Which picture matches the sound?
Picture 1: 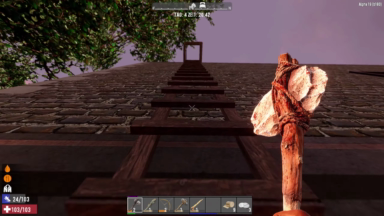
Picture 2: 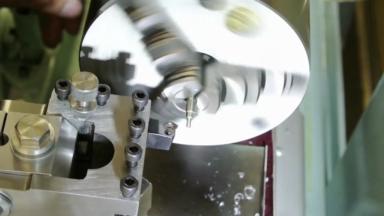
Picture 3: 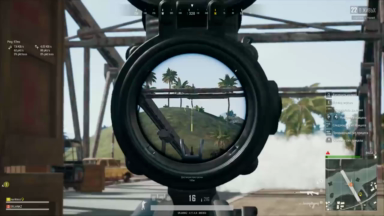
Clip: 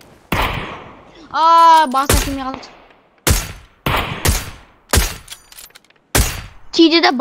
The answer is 3